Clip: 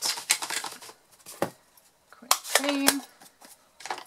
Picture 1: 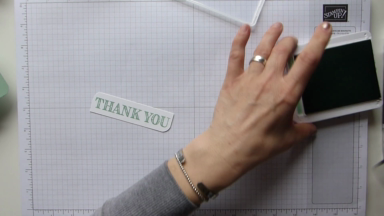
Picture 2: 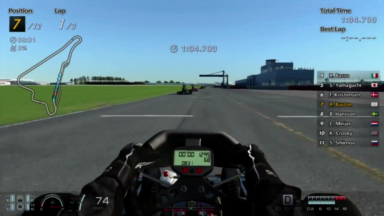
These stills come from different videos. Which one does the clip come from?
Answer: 1